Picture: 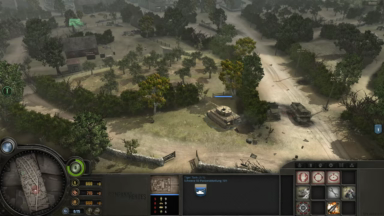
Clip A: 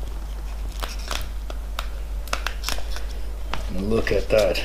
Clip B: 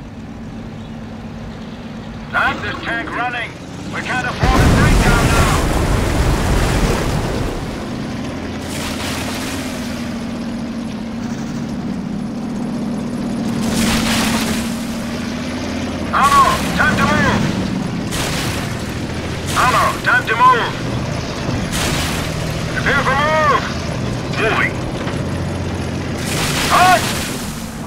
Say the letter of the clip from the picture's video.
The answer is B